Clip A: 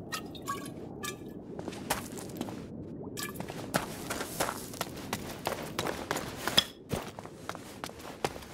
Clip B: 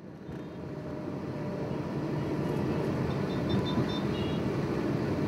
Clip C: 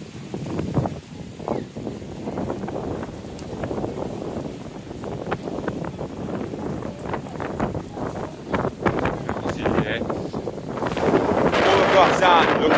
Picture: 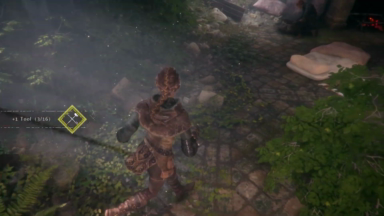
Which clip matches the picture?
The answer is A